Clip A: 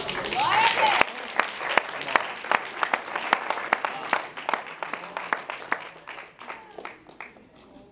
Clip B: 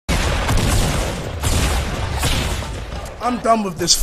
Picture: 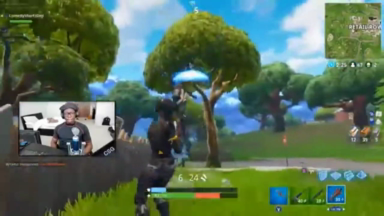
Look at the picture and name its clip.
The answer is B